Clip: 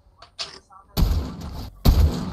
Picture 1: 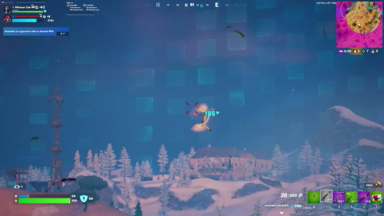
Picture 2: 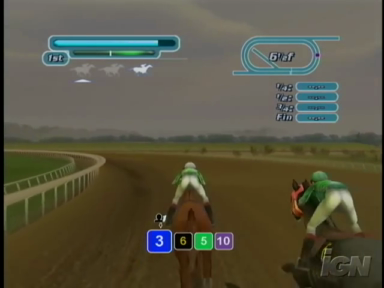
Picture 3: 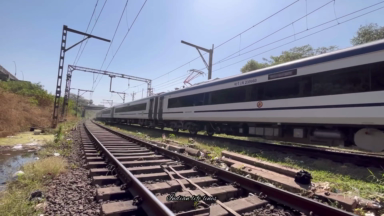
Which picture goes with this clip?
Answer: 1